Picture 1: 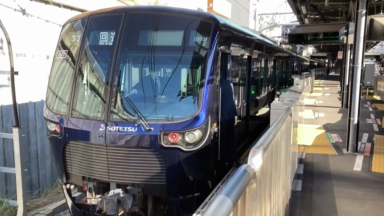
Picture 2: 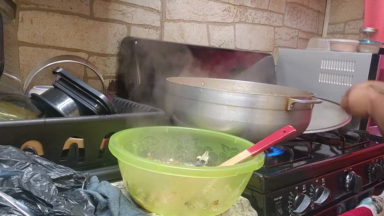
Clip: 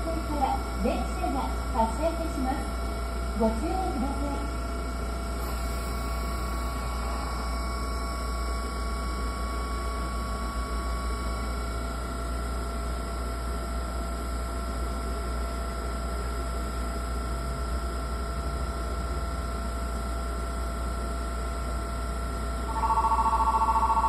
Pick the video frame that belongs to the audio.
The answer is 1